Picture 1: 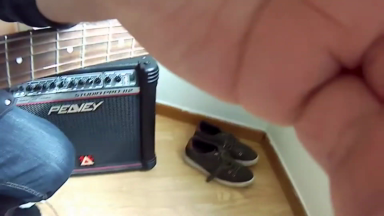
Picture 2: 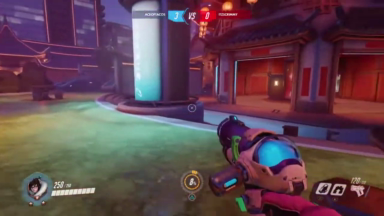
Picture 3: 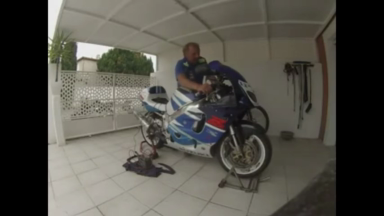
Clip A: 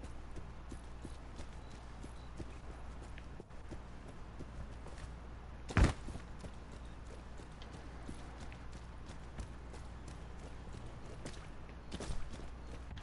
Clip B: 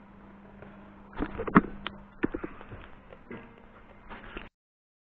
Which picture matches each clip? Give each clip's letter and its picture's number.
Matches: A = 2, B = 1